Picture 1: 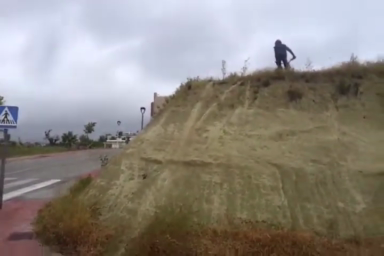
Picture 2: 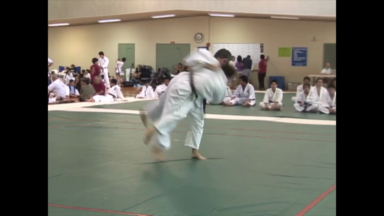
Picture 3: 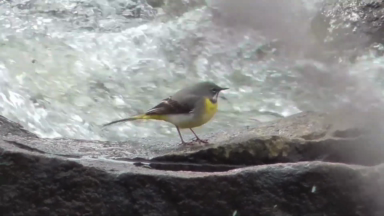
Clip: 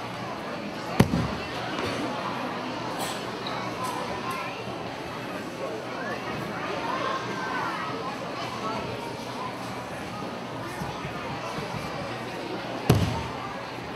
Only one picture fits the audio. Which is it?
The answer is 2